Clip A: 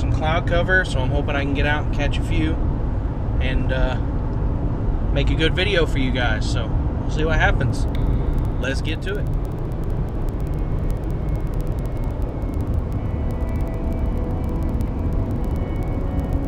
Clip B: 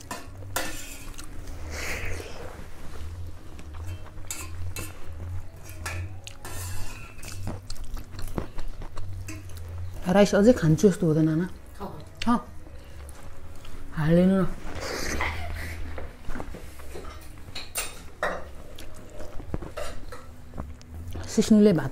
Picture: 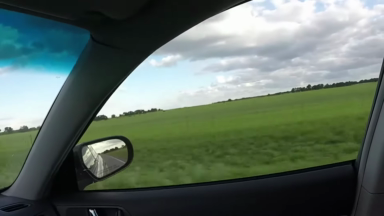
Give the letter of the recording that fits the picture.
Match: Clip A